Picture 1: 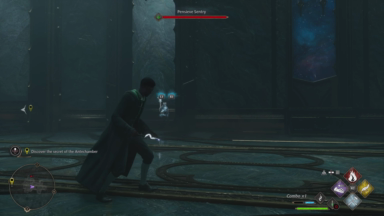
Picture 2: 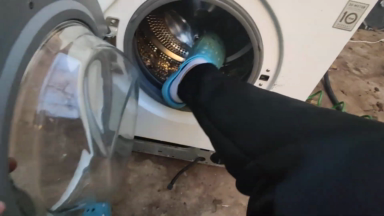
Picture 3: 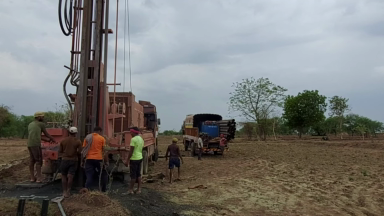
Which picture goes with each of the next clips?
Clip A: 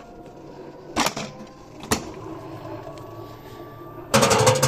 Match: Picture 2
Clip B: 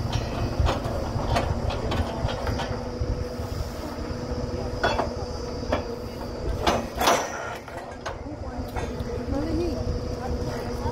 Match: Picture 3